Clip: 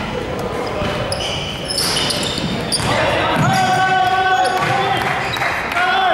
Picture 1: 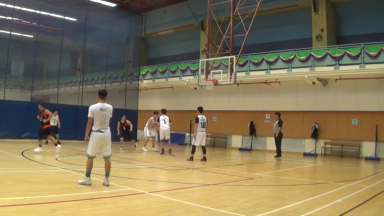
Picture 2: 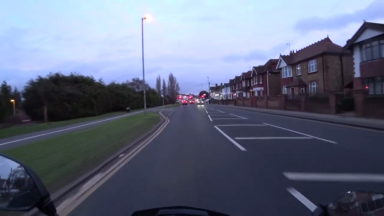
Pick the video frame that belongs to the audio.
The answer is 1